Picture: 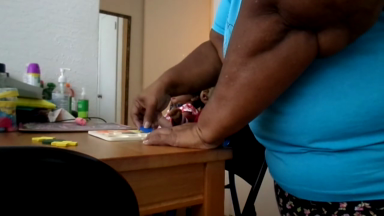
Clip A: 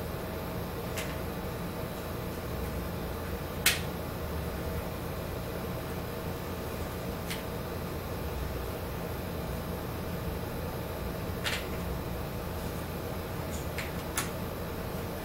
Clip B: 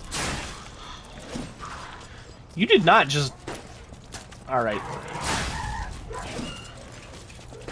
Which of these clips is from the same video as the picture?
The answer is A